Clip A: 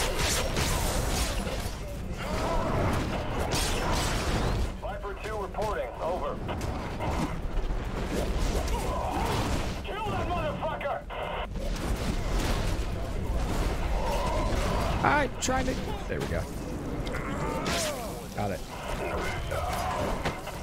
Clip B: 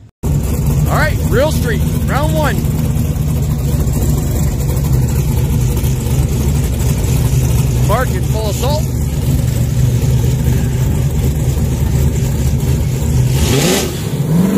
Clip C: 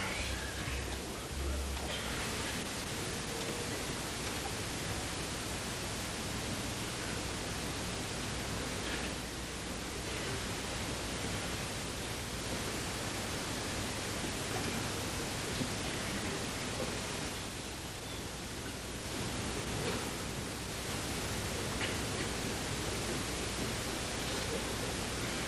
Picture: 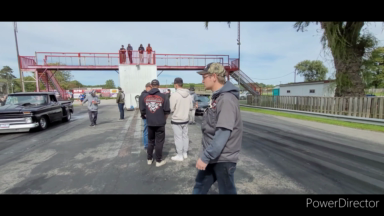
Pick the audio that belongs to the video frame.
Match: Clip B